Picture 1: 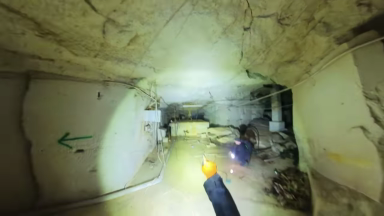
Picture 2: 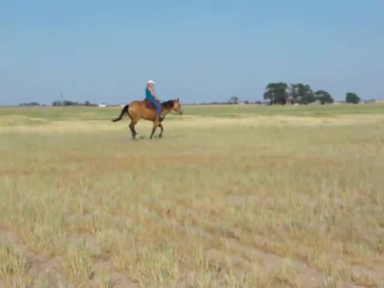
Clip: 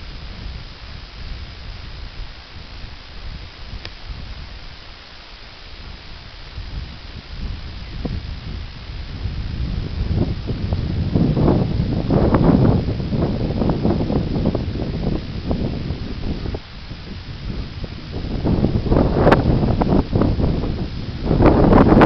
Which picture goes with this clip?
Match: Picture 2